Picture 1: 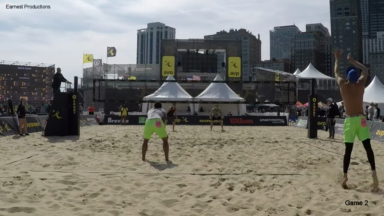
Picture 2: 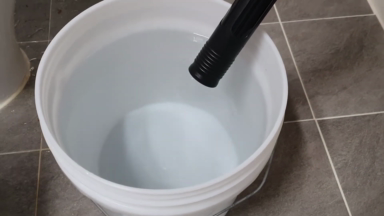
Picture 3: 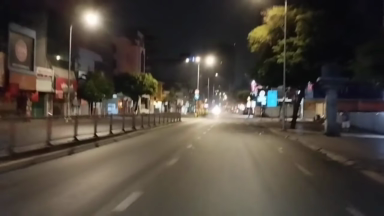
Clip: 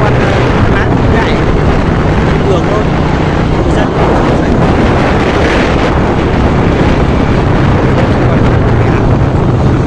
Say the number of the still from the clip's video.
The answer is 3